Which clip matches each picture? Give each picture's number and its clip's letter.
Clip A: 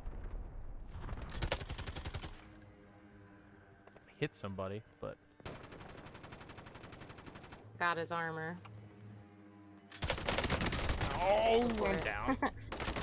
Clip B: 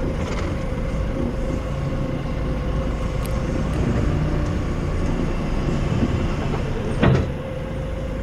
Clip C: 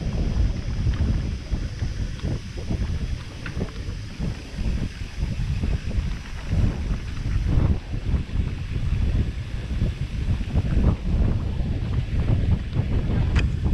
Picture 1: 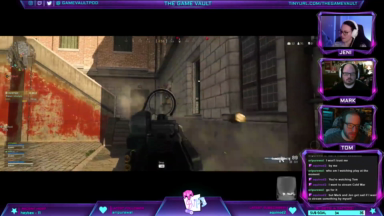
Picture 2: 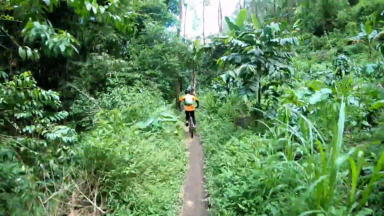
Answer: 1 A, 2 C